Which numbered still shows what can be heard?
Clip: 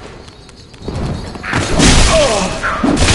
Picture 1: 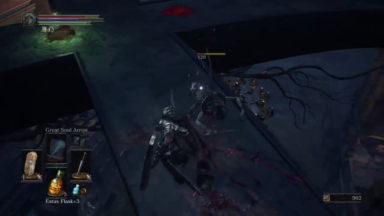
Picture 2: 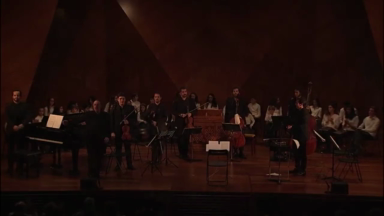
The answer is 1